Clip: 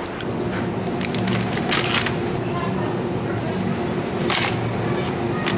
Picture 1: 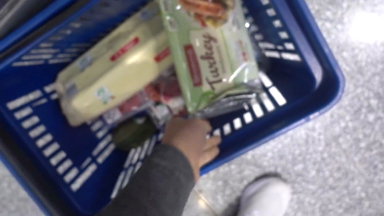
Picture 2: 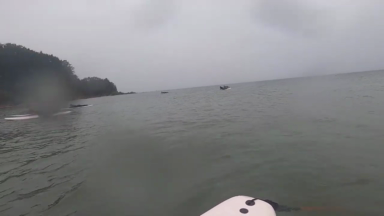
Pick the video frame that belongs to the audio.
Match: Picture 1